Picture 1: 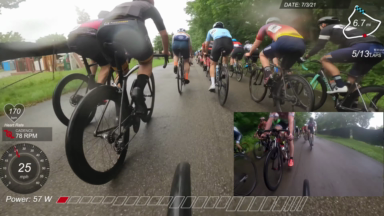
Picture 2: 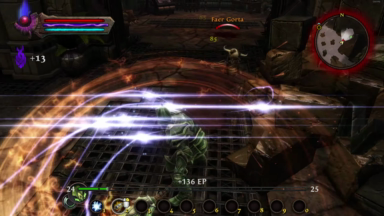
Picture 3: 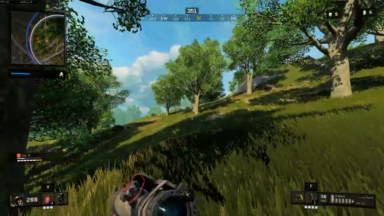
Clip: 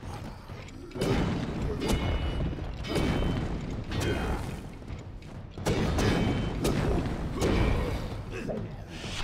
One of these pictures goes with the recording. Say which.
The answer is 2